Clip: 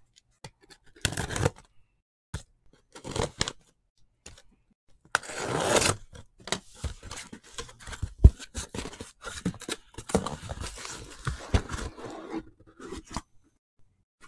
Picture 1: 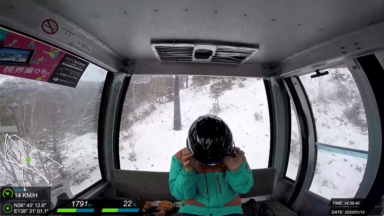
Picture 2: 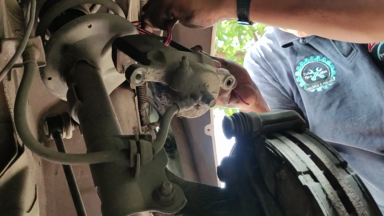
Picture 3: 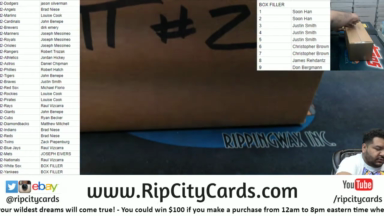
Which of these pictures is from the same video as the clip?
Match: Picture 3